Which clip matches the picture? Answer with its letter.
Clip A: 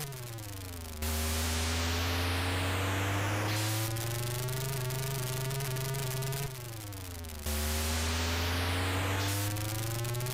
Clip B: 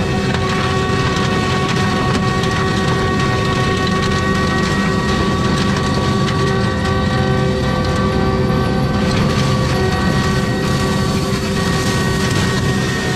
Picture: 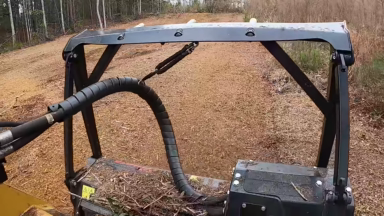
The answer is B